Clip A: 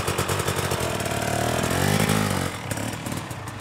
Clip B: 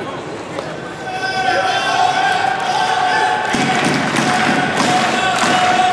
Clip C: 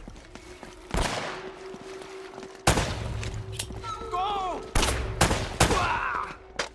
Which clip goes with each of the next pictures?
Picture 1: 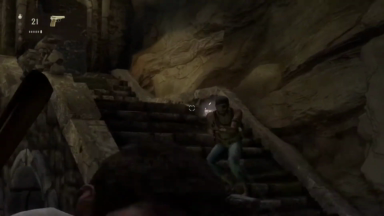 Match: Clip C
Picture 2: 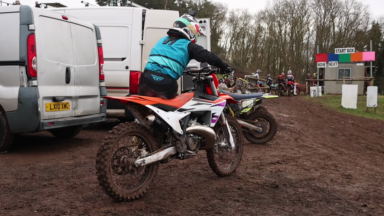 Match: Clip A